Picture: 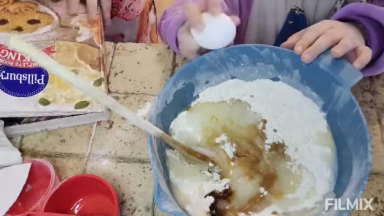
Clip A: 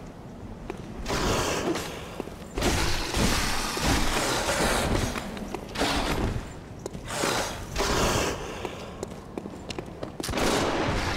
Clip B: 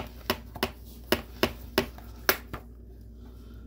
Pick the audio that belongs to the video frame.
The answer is B